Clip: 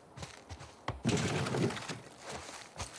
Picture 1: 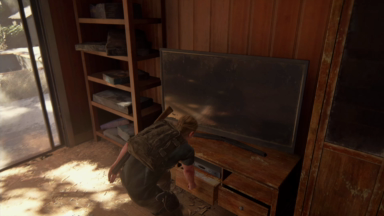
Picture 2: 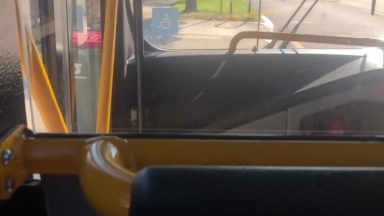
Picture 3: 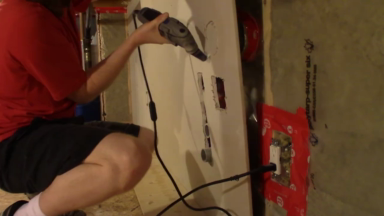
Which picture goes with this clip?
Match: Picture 1